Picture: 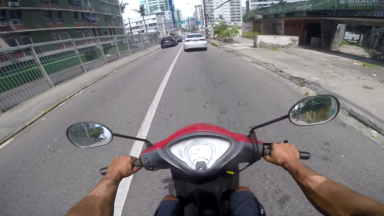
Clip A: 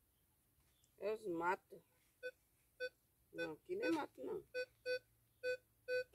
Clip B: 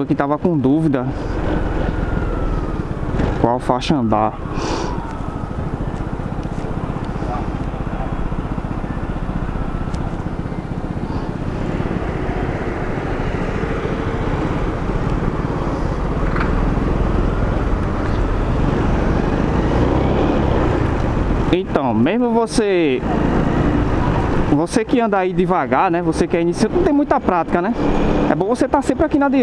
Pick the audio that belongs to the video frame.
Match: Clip B